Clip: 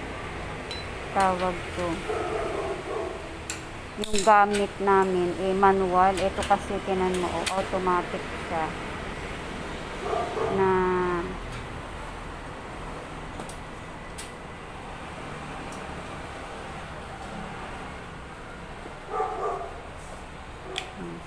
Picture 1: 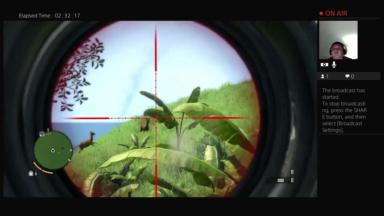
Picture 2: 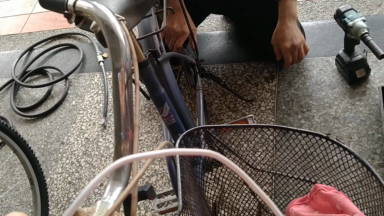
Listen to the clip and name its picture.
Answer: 2